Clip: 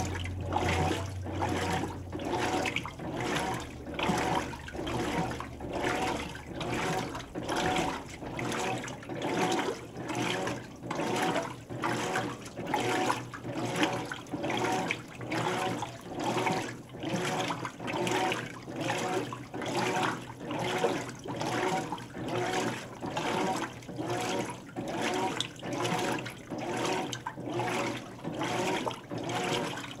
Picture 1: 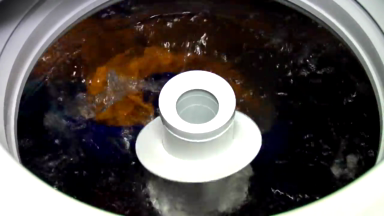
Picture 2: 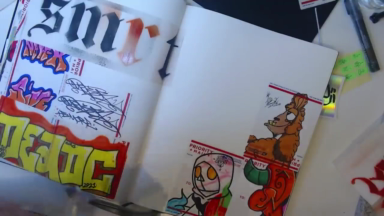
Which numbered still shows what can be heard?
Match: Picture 1